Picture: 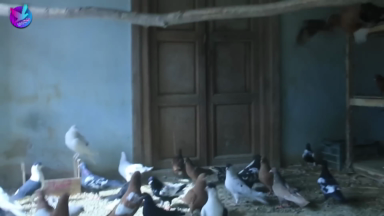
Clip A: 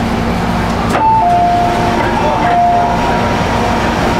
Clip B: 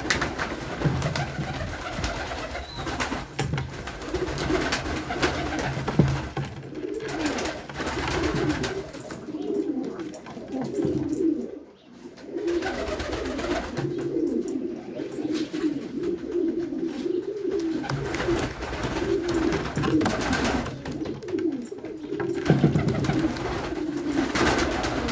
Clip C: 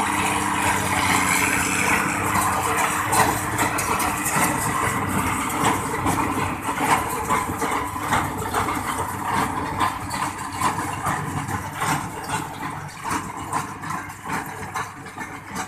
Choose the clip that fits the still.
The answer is B